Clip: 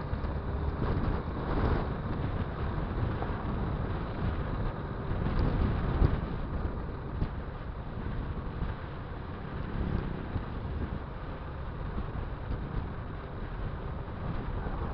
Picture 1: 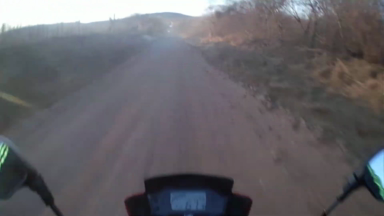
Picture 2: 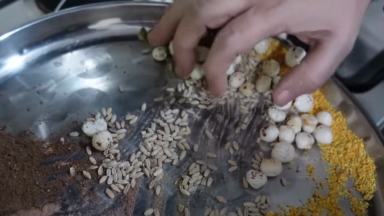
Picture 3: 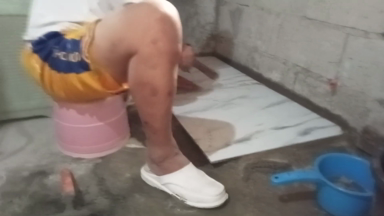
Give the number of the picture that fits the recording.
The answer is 1